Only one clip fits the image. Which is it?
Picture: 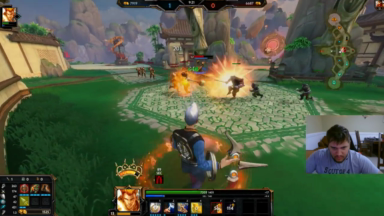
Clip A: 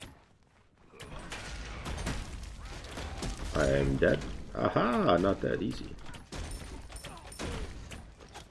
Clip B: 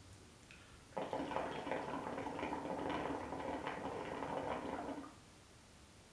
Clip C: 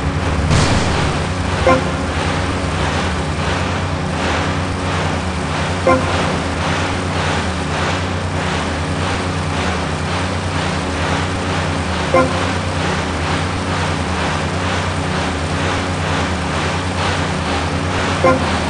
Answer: A